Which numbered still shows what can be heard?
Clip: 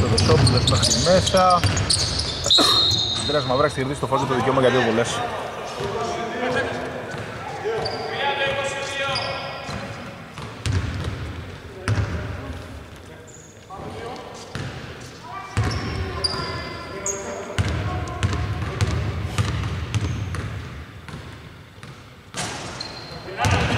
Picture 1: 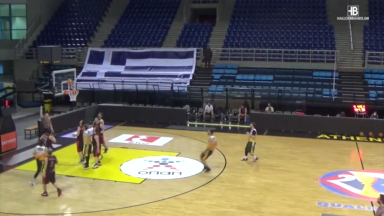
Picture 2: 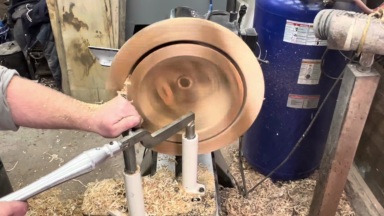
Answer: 1